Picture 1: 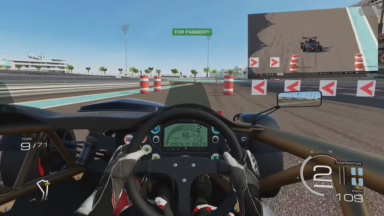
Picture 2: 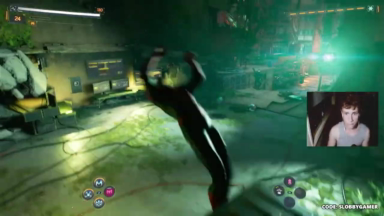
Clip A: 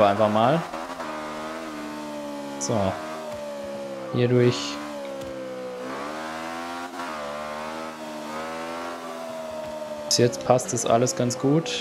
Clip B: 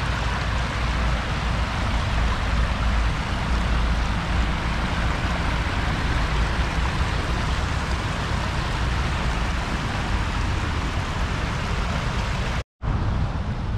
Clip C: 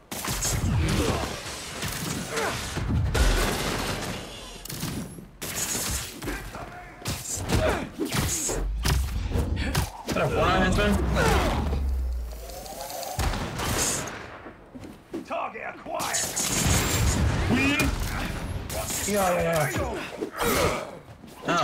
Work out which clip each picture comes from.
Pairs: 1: A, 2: C